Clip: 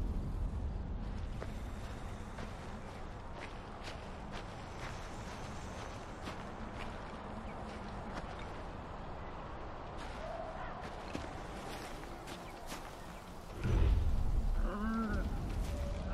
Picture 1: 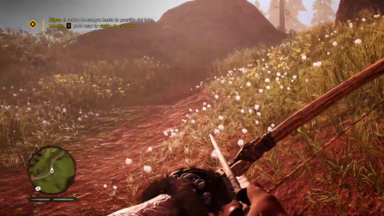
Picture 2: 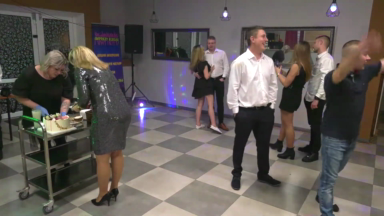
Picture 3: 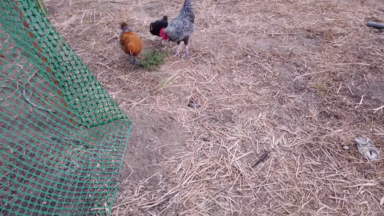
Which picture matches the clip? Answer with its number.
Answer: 1